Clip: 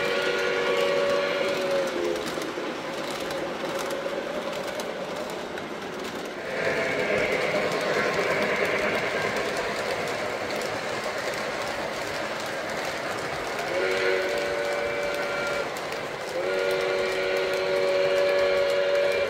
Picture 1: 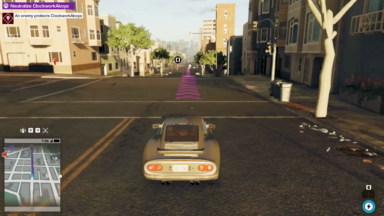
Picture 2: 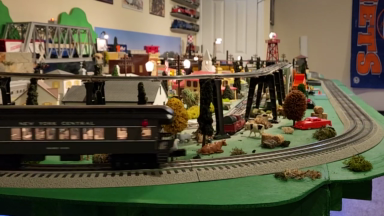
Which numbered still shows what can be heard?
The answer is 2